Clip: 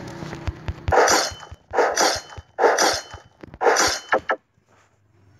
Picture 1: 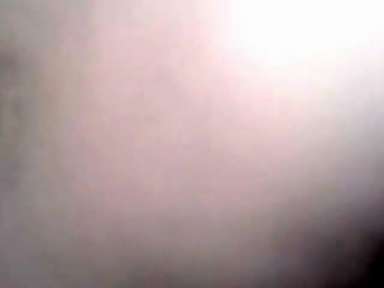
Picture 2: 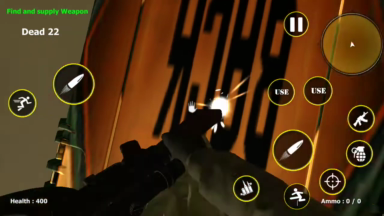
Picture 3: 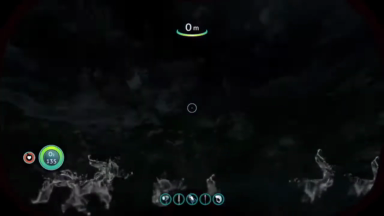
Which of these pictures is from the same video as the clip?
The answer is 2